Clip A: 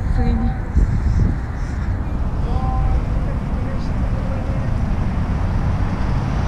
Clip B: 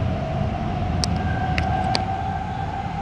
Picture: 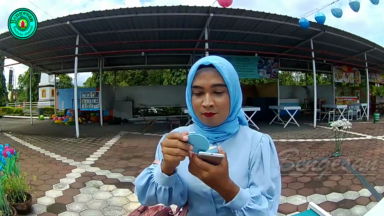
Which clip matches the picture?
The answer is B